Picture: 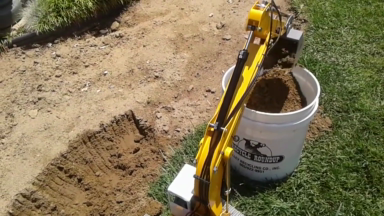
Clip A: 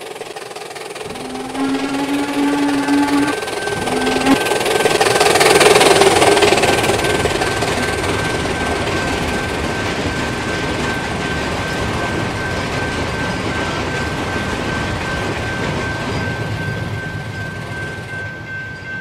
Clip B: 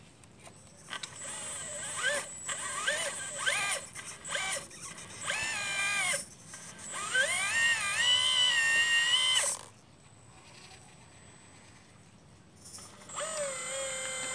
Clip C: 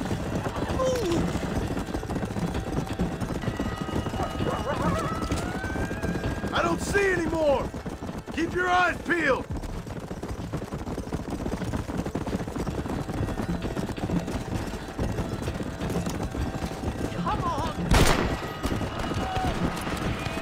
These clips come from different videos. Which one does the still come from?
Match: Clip B